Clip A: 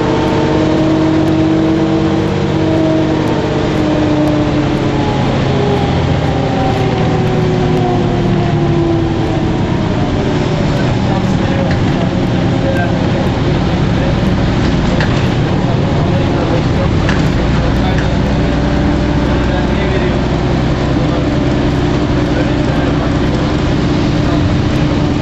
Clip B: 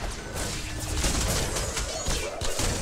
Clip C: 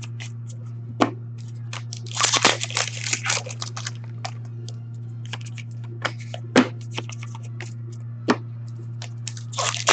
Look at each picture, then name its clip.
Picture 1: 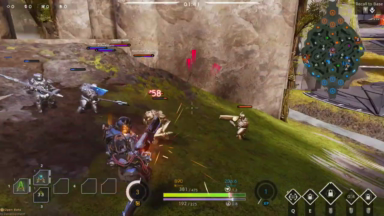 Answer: B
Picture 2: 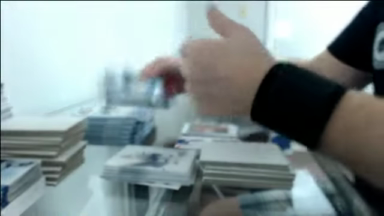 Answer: C